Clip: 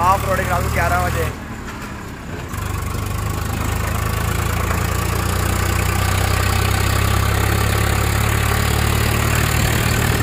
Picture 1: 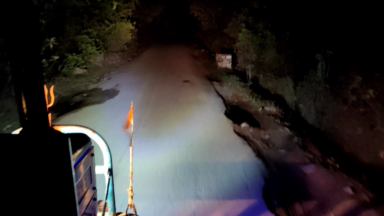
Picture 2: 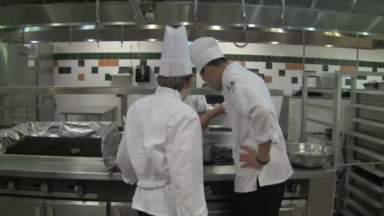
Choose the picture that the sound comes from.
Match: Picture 1